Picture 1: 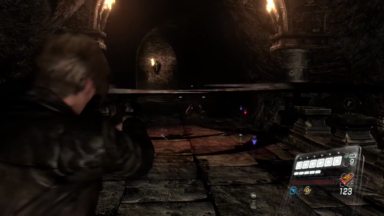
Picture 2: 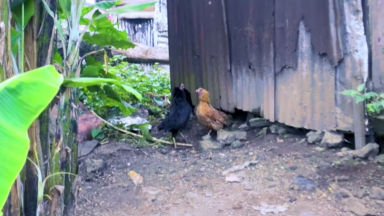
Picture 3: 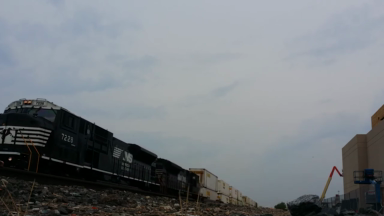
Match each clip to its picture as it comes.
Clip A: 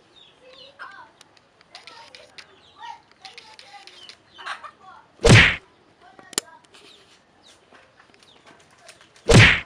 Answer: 2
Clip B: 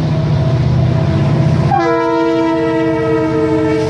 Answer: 3